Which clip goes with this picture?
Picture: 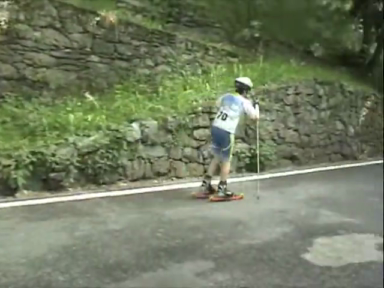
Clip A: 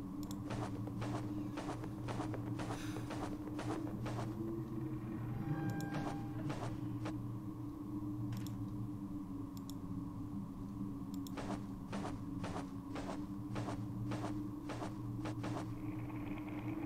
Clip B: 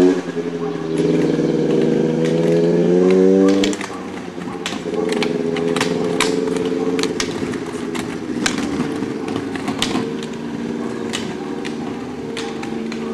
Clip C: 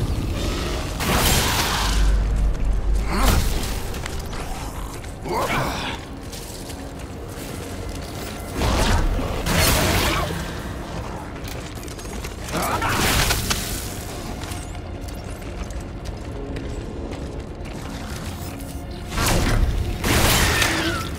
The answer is B